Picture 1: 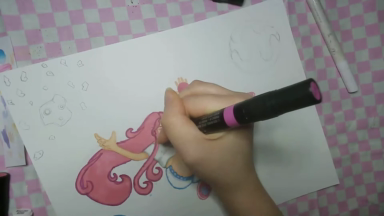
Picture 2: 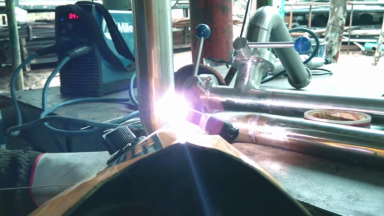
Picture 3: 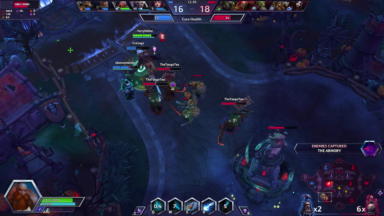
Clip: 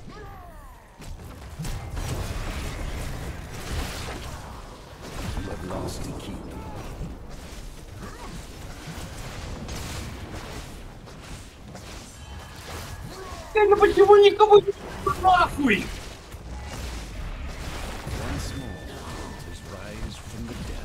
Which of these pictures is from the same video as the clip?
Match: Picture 3